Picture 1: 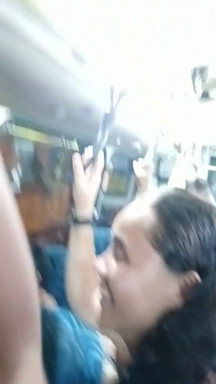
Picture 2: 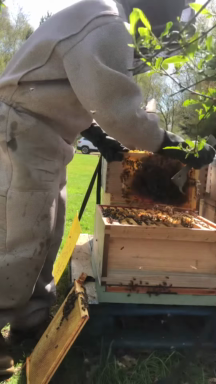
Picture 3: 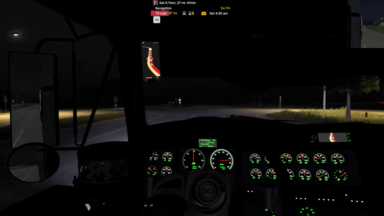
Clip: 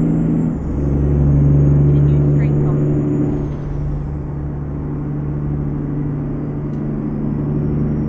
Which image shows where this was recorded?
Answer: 3